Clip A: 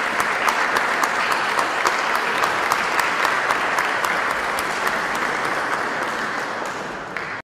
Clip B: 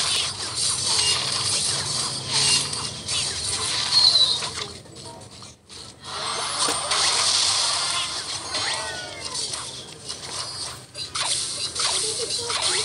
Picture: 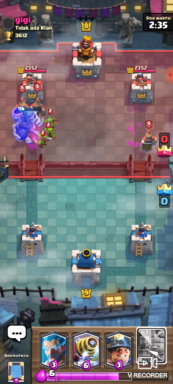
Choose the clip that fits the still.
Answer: B